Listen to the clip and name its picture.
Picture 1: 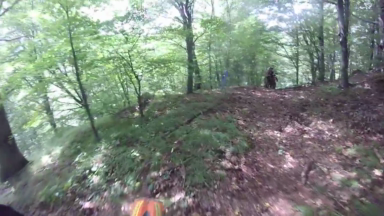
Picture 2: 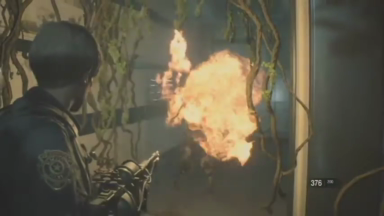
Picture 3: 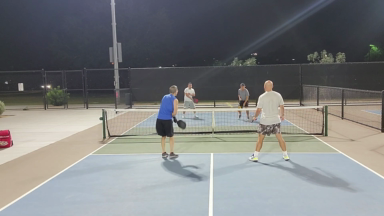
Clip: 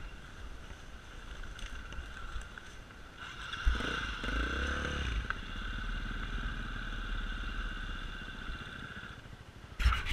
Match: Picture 1